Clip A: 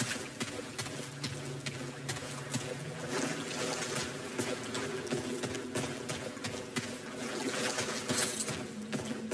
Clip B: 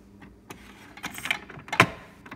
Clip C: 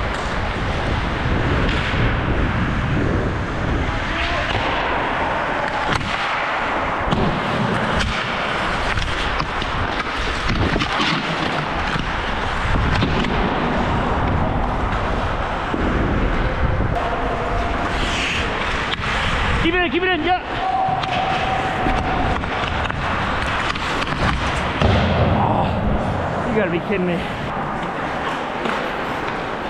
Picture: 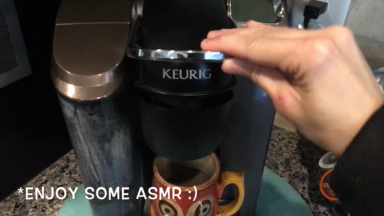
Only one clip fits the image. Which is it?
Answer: B